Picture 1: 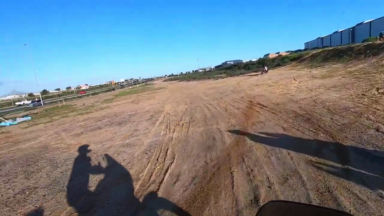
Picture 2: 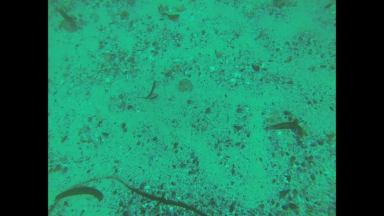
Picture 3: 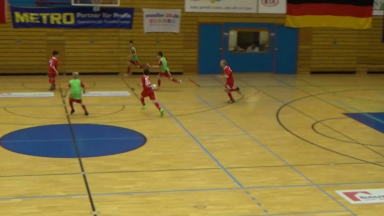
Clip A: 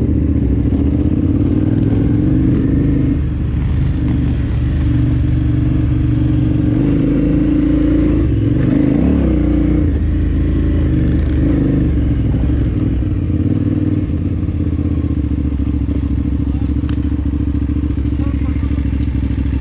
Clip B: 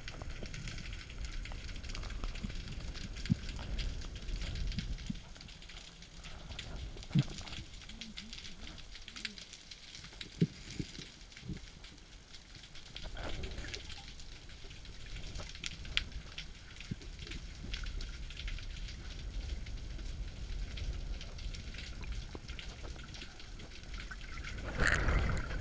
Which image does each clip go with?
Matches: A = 1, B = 2